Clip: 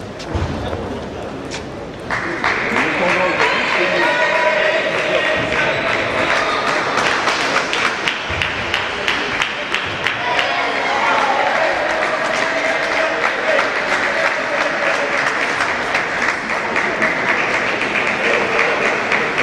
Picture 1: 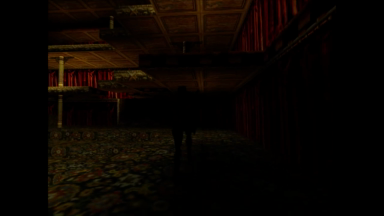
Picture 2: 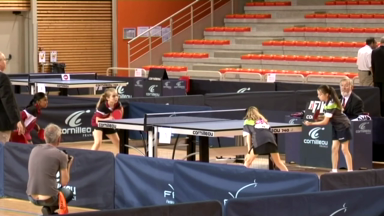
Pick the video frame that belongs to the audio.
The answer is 2